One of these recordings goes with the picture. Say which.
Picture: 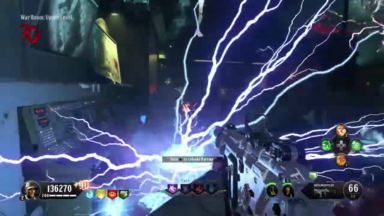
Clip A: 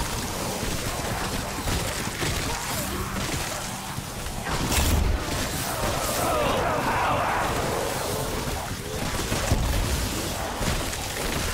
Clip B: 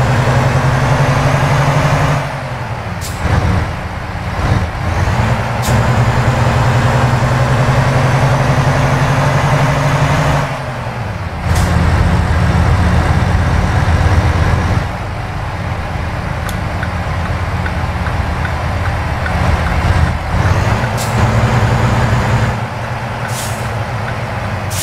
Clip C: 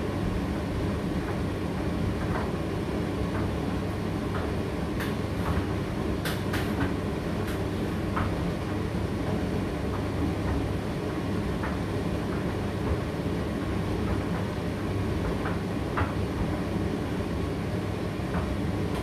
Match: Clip A